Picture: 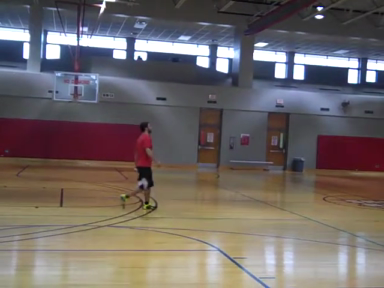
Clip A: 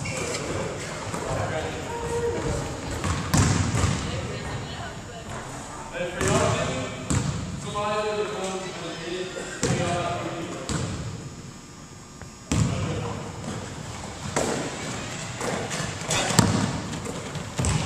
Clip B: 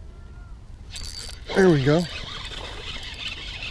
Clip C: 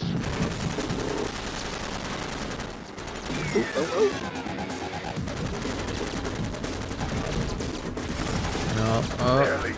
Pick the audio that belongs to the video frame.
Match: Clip A